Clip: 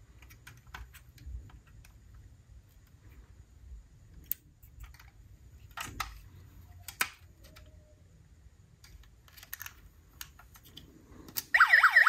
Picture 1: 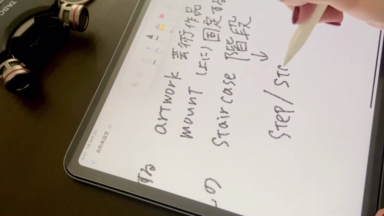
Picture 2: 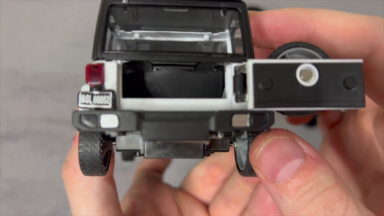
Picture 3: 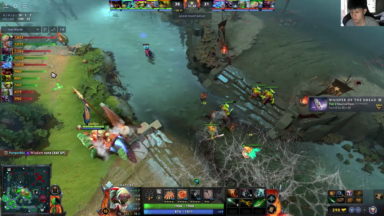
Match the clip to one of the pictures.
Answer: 2